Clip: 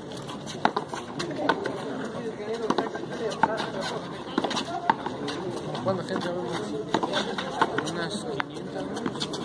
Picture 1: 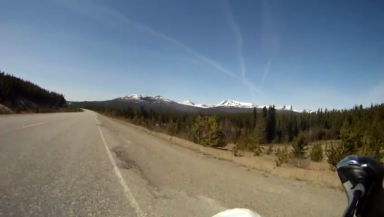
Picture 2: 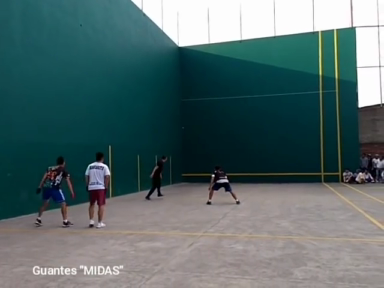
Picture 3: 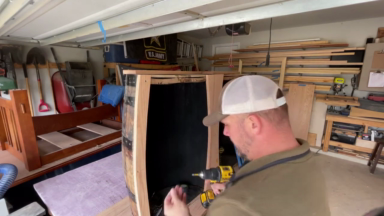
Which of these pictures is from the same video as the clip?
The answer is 2